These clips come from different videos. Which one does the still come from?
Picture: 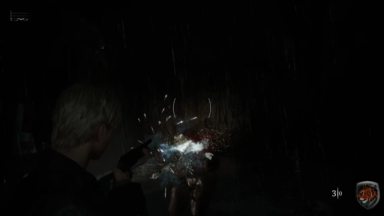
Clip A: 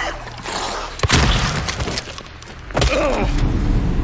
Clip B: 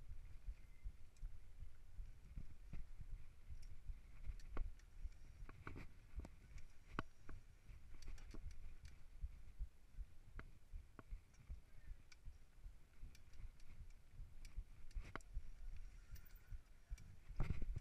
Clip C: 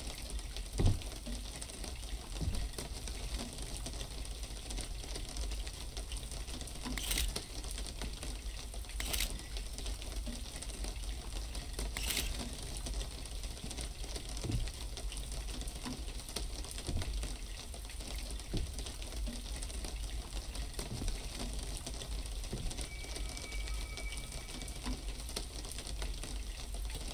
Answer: A